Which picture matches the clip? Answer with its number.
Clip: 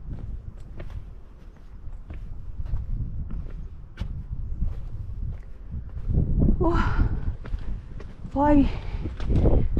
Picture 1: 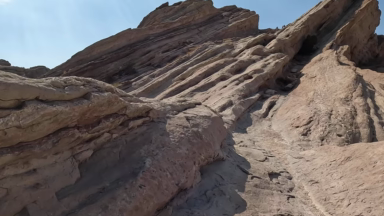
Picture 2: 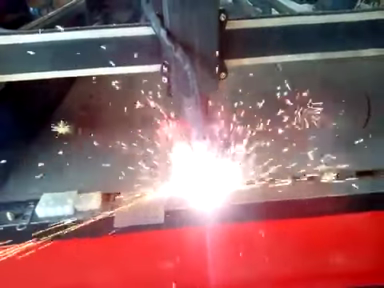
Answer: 1